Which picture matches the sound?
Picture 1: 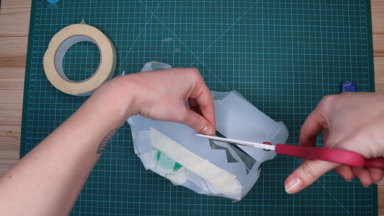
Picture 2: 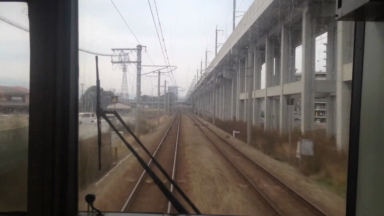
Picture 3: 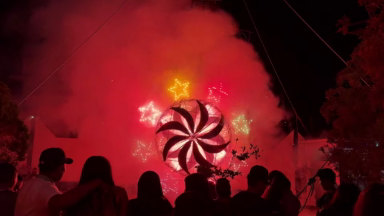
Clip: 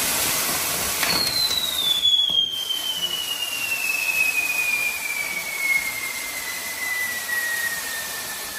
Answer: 3